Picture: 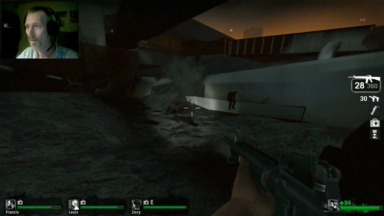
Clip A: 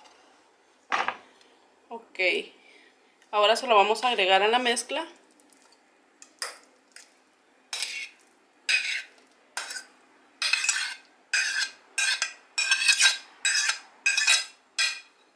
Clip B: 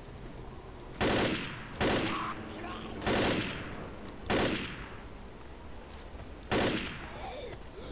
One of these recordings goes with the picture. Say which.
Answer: B